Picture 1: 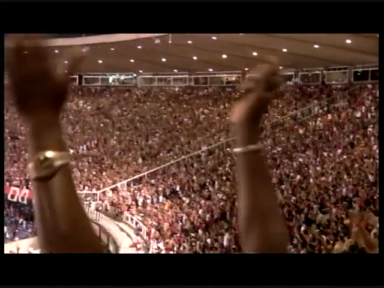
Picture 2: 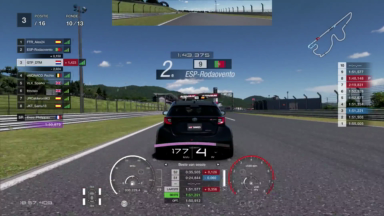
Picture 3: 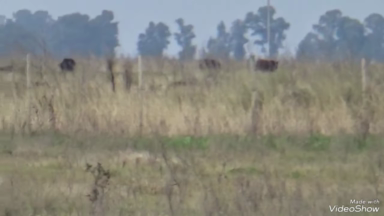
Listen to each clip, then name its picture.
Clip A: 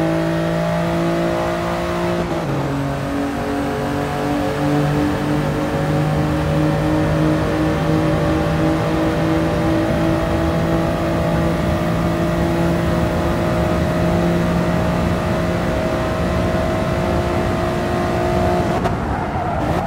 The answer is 2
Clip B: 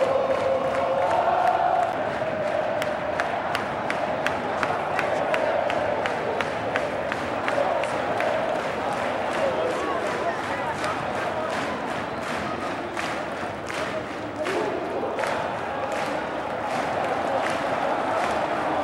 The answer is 1